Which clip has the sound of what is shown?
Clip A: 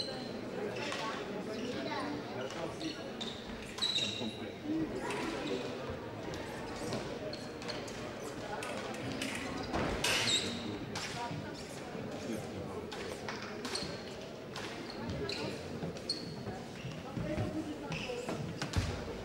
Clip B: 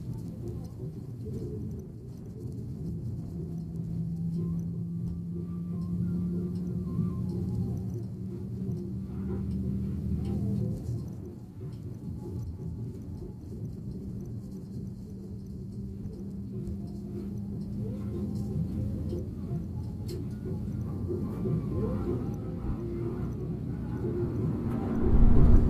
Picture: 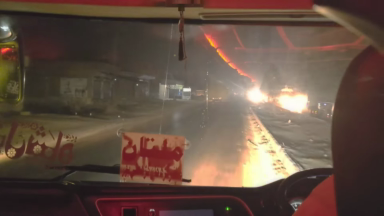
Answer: B